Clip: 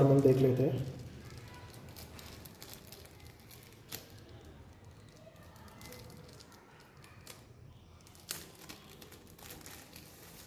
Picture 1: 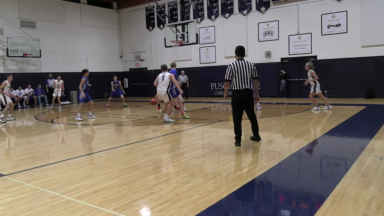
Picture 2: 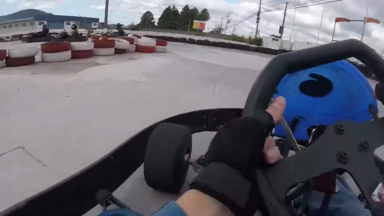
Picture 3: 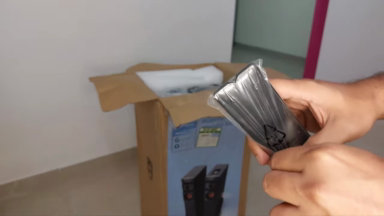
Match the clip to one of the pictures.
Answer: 3